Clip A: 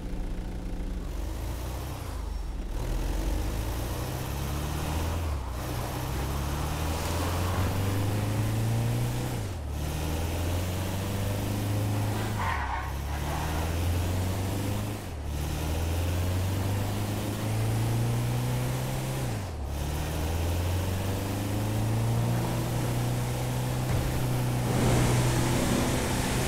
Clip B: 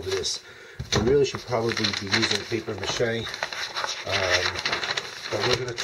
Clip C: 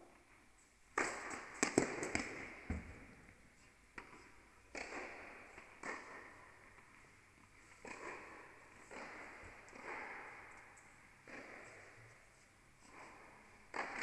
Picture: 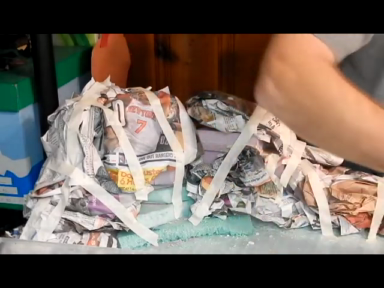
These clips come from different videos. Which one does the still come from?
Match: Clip B